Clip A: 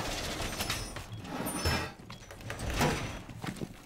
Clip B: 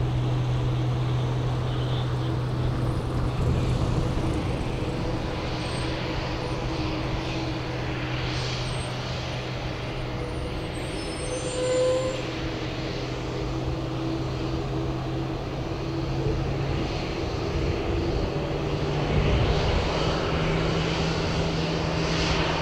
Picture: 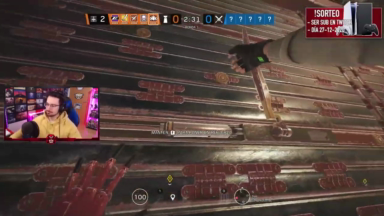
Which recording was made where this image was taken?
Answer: A